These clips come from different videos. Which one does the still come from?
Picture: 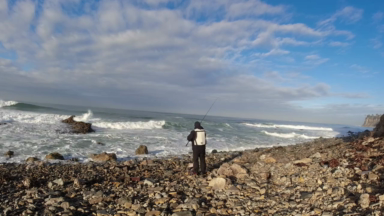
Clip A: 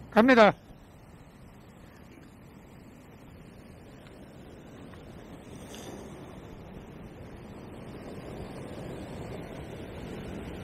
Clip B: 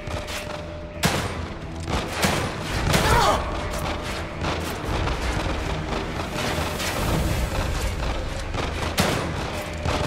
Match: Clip A